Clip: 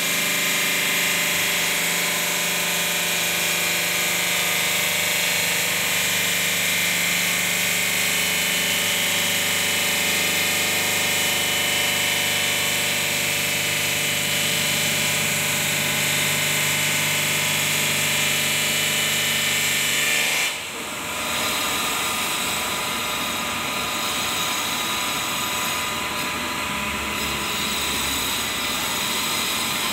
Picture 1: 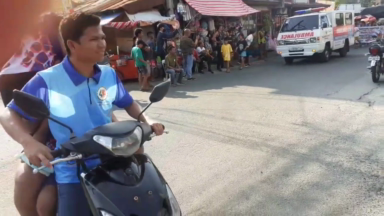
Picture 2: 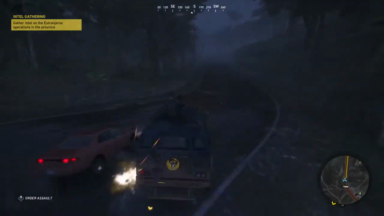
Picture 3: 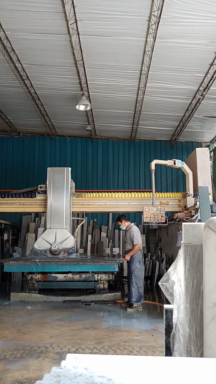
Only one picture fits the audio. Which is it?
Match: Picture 3